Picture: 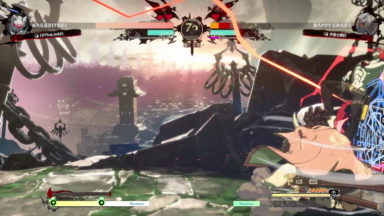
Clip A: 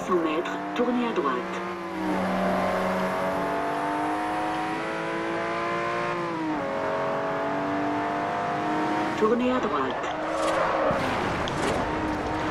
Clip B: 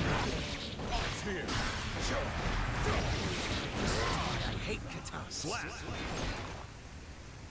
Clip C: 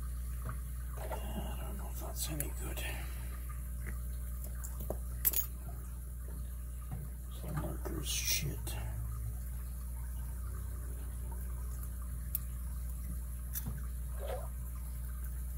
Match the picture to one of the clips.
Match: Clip B